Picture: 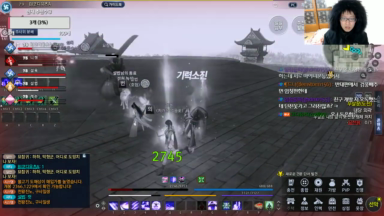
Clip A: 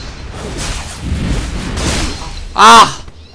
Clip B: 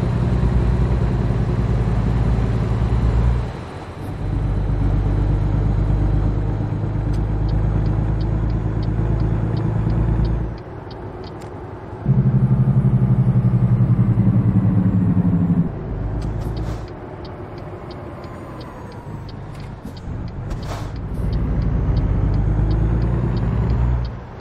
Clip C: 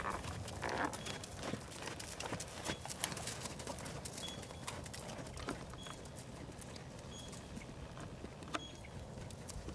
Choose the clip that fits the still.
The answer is A